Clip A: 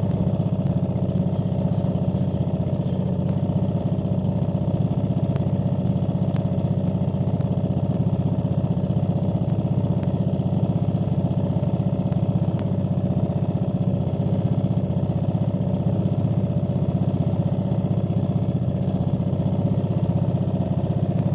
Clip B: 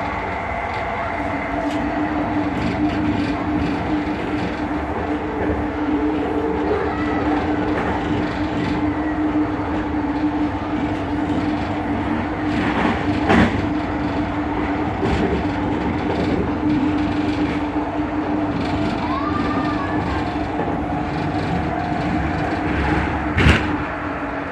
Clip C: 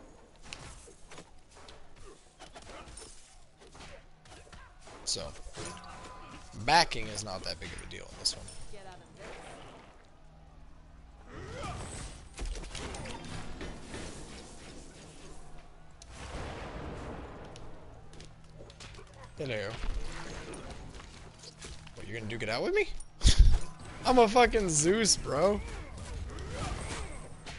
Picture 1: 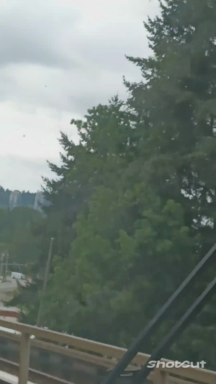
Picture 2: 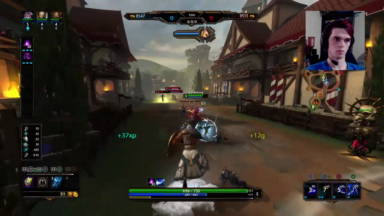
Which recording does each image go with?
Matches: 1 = B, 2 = C